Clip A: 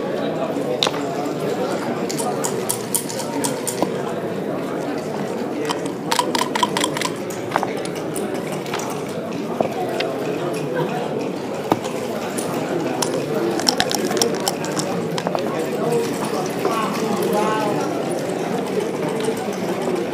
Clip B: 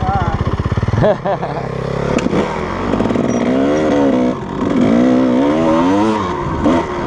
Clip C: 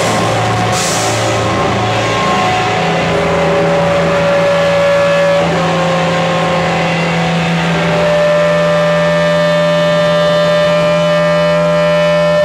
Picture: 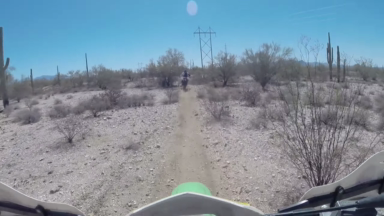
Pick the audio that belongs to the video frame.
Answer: B